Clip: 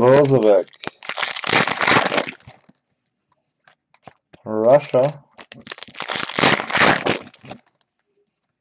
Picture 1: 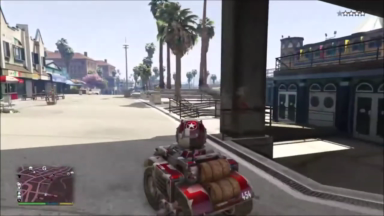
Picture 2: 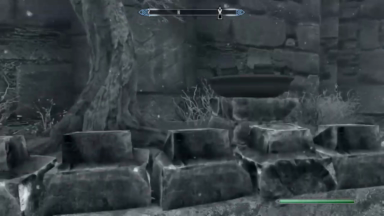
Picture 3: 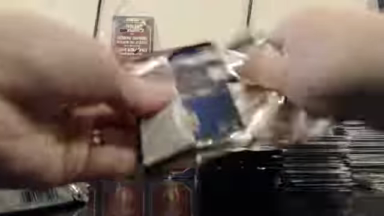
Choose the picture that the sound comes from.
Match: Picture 3